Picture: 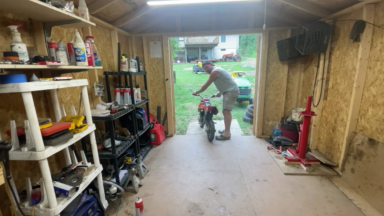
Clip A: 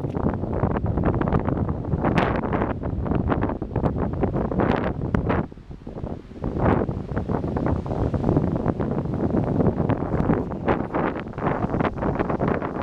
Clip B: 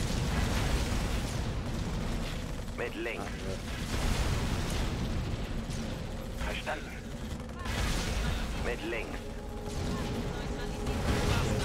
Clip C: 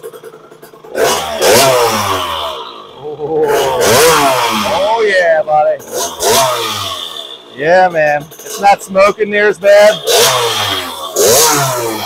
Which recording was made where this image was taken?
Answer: C